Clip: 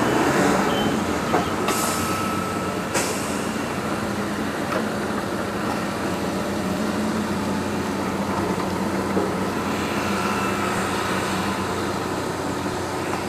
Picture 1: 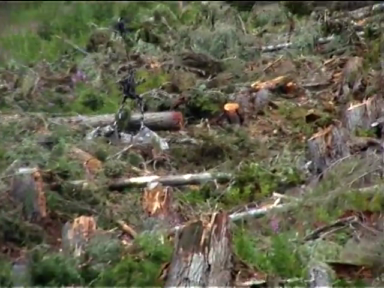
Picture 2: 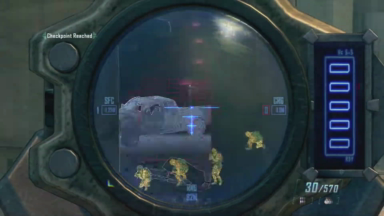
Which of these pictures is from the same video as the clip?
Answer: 1